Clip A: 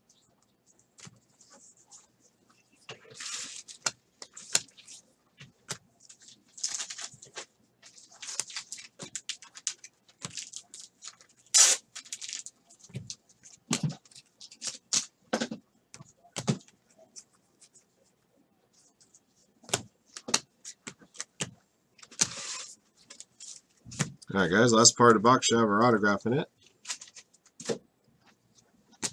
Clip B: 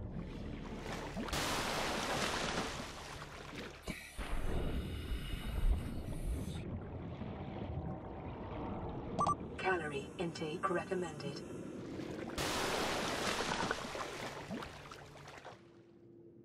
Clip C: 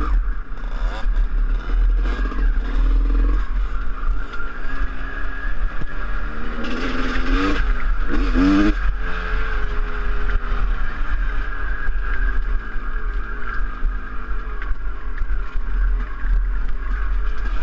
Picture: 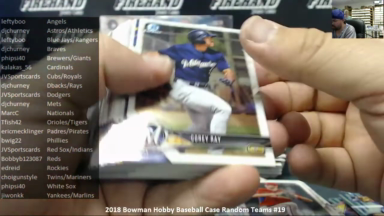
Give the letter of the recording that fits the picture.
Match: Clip A